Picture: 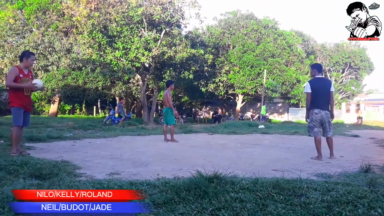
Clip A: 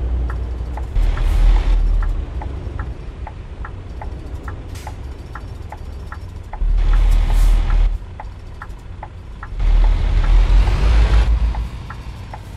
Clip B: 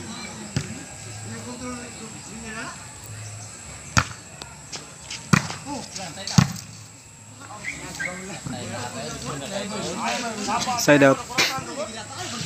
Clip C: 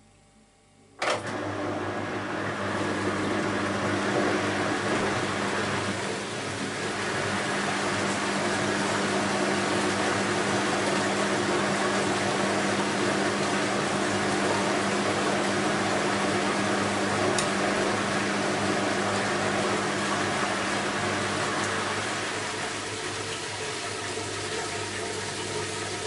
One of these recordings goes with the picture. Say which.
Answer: B